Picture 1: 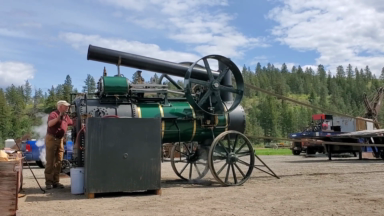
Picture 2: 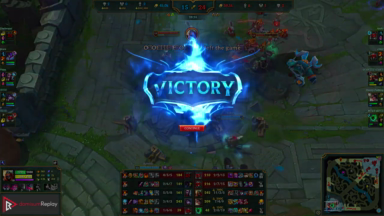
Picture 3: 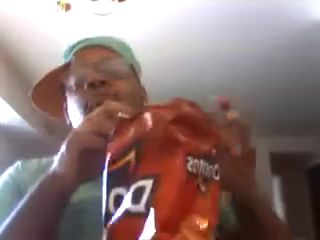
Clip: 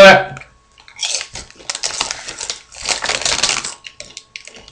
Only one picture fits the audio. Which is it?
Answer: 3